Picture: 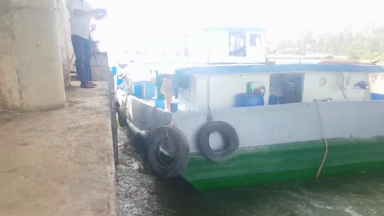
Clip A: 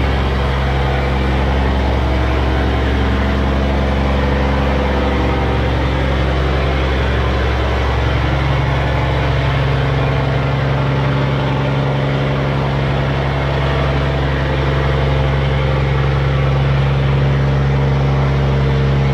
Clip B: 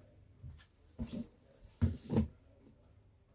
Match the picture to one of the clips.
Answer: A